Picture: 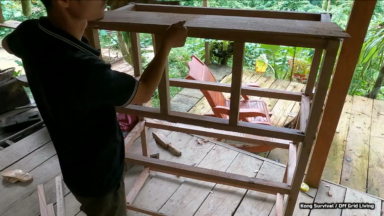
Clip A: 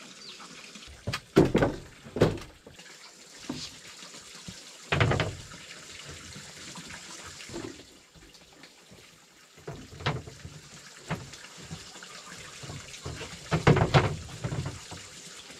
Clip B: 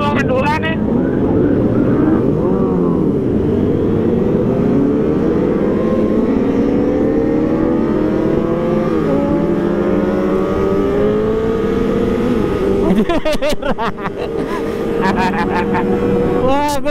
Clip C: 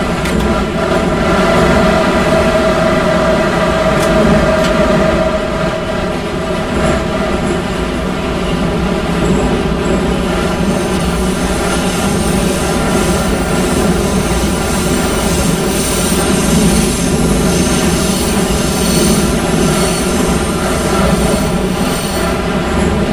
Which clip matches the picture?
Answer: A